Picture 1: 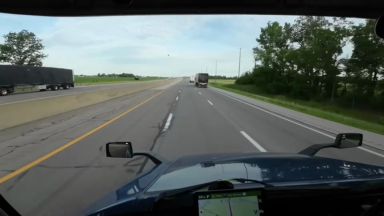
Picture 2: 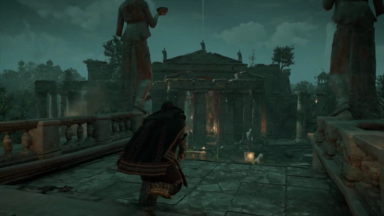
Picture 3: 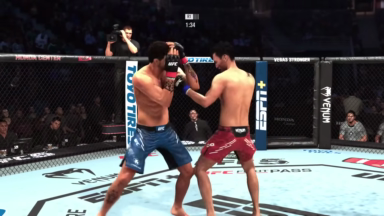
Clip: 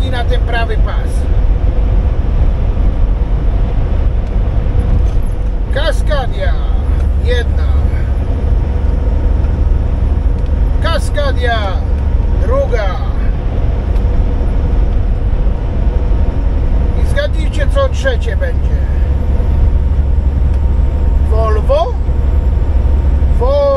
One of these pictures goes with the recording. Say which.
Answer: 1